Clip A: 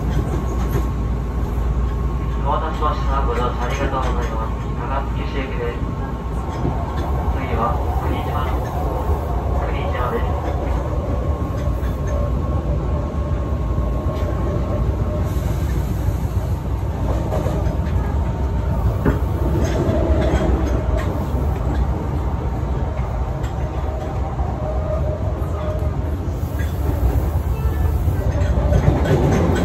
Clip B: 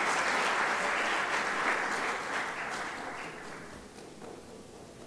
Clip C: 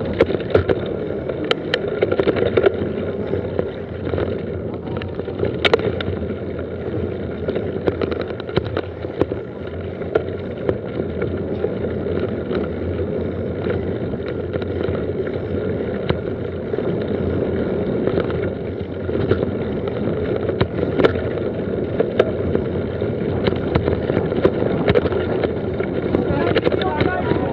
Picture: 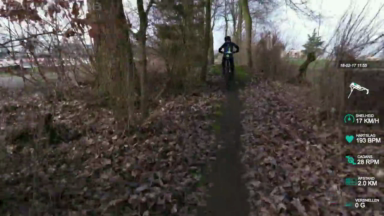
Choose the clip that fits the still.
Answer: C